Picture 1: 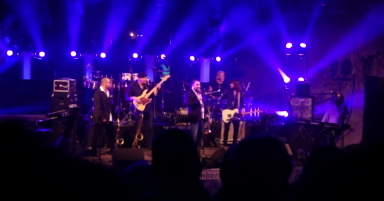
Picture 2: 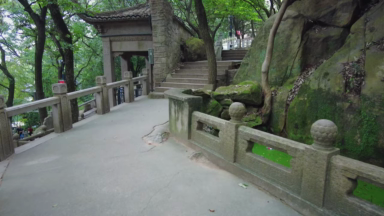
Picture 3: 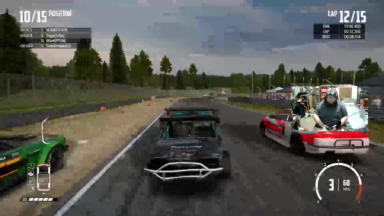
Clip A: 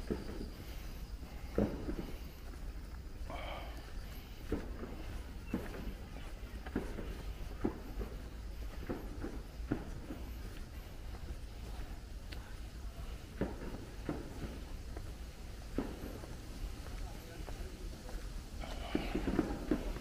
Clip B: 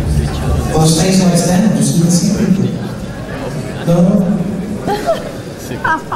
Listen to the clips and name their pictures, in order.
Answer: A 2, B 1